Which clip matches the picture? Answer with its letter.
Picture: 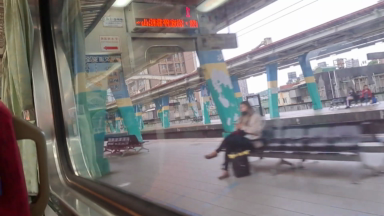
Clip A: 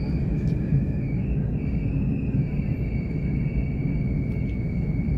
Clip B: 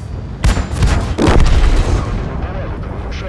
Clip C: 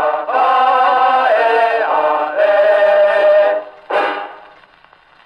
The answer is A